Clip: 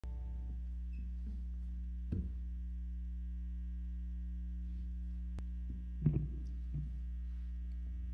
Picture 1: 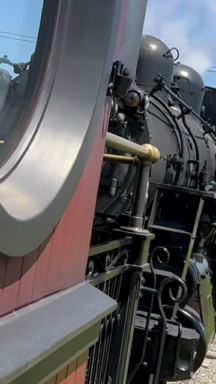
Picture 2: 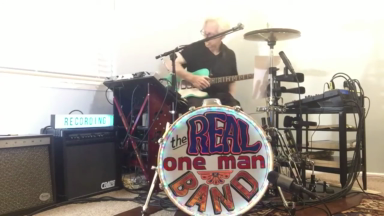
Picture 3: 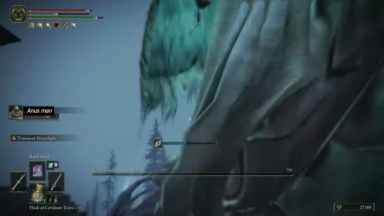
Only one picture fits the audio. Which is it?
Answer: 2